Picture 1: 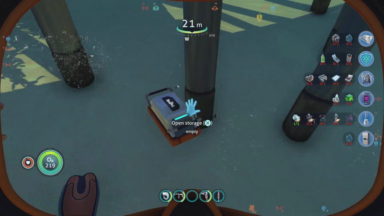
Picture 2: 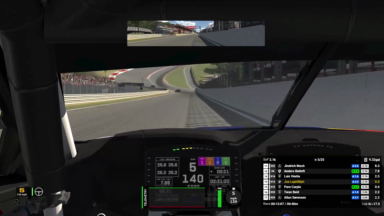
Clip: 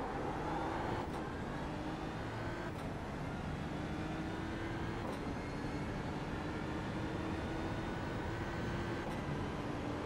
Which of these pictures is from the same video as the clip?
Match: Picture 2